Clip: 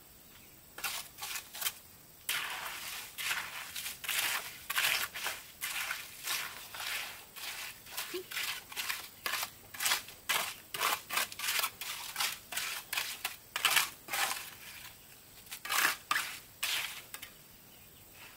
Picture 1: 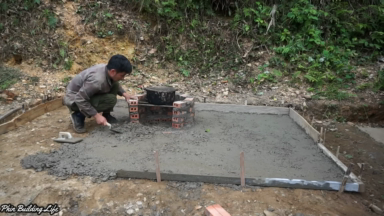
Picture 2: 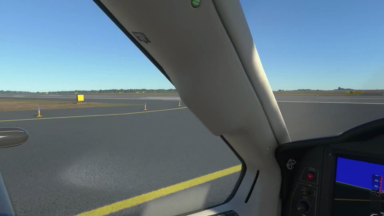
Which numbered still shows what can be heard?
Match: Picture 1